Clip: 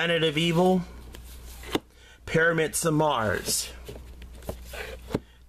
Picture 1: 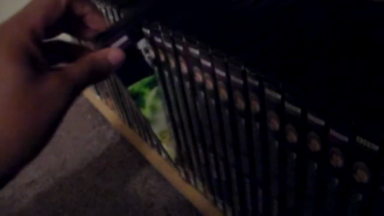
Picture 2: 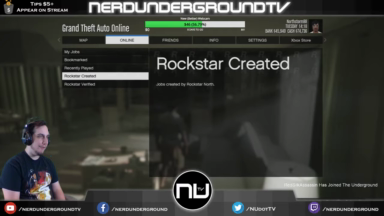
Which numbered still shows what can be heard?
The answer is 1